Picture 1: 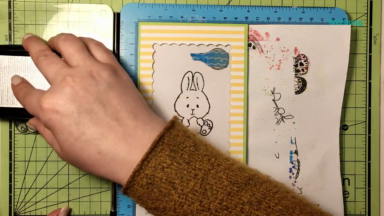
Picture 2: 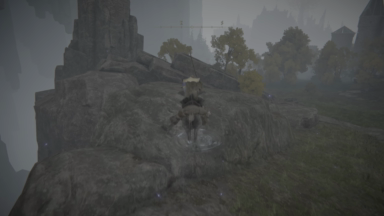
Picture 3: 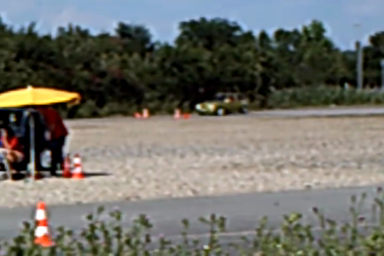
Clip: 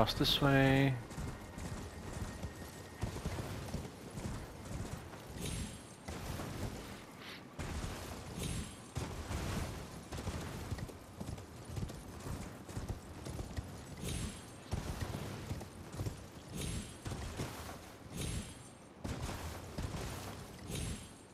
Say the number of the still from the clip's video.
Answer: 2